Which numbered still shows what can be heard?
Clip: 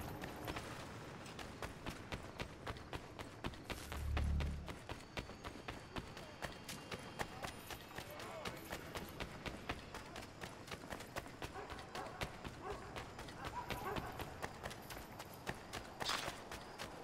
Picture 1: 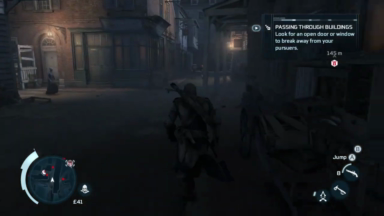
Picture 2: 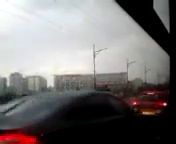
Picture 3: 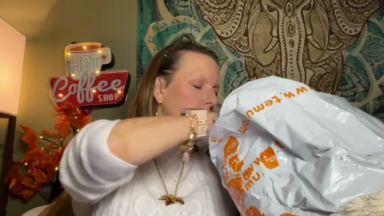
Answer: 1